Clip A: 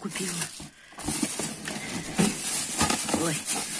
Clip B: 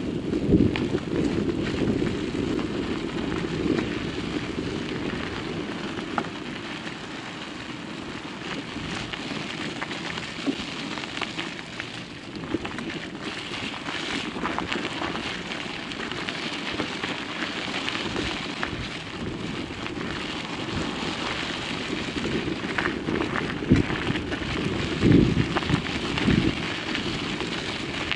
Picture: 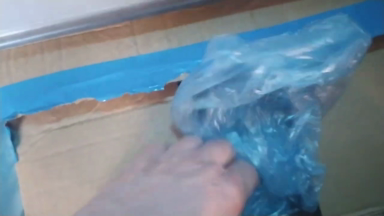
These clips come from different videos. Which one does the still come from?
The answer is A